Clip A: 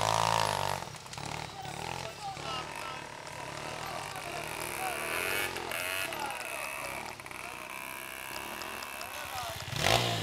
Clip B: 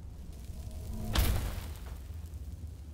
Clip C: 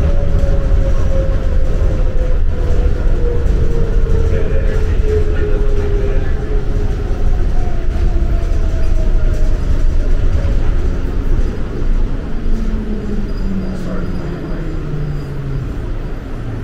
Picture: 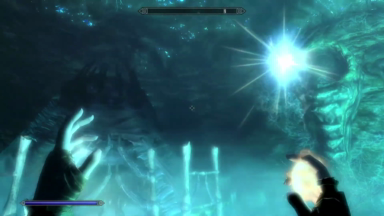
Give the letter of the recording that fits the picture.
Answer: B